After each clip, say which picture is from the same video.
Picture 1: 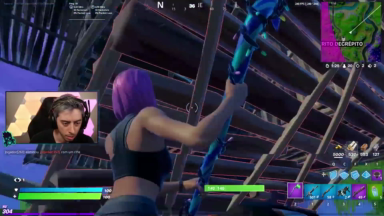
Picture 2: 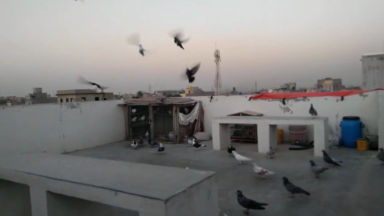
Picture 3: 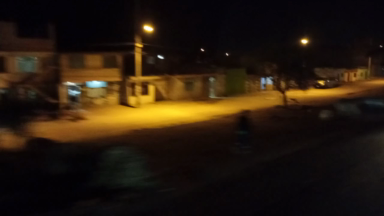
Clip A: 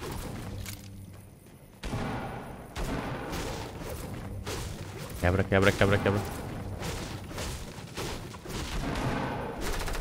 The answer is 1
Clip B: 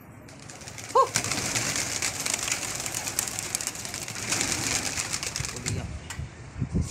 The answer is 2